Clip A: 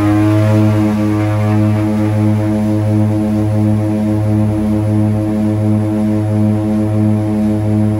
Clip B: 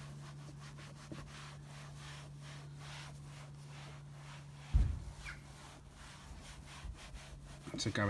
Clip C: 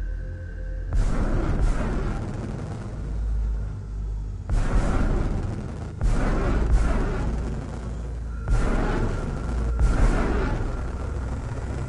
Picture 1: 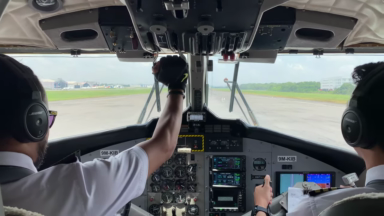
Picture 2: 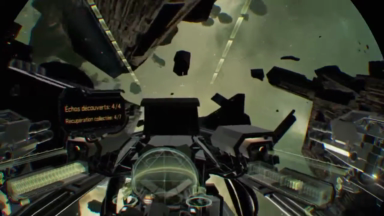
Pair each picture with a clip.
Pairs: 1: A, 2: C